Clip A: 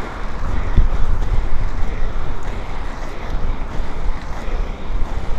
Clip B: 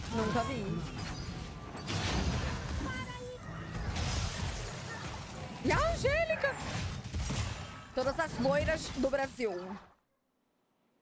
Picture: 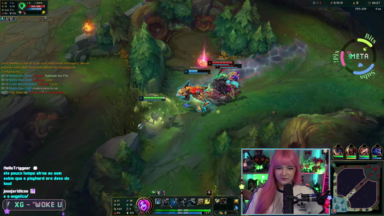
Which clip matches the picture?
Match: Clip B